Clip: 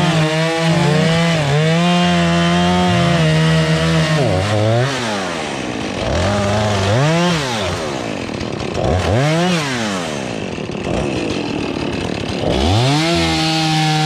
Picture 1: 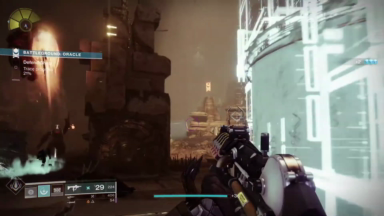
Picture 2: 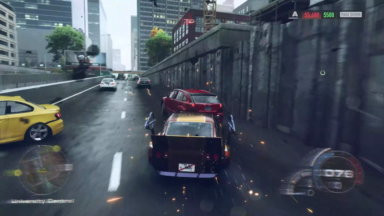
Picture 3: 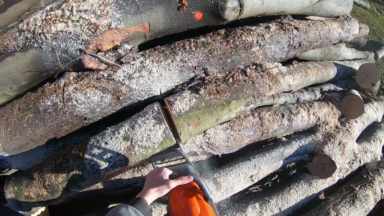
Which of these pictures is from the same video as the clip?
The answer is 3